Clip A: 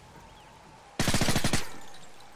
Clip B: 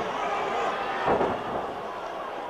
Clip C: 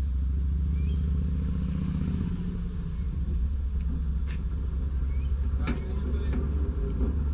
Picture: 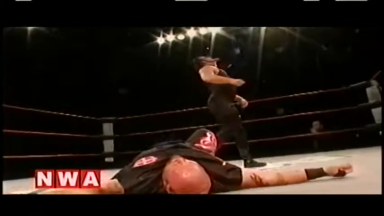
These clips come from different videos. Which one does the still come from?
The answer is B